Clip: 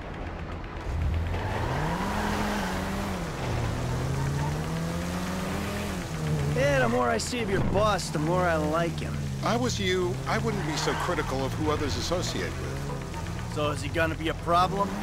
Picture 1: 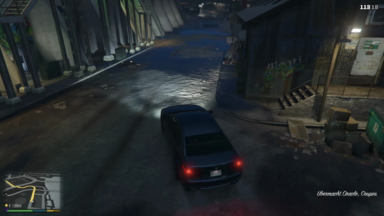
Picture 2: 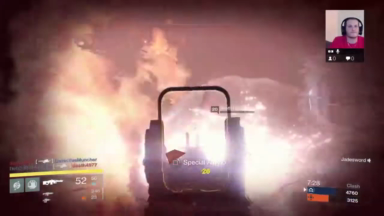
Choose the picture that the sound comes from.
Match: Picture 1